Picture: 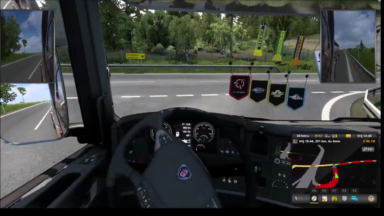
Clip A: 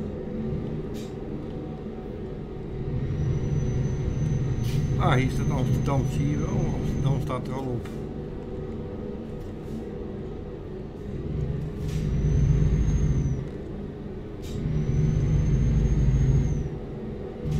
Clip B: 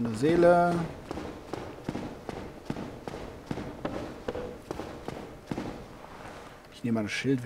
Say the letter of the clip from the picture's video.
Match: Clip A